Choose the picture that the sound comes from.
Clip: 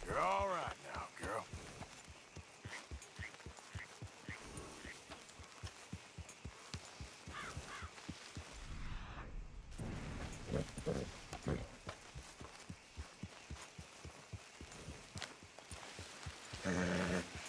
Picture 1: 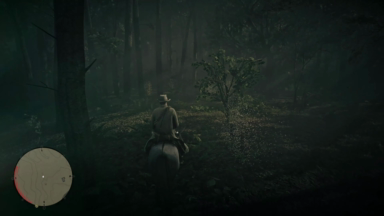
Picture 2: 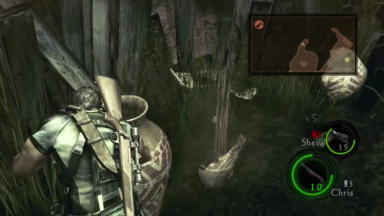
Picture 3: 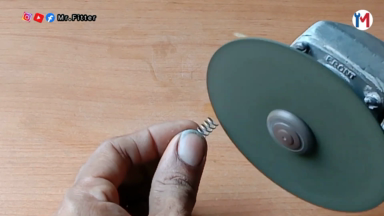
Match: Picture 1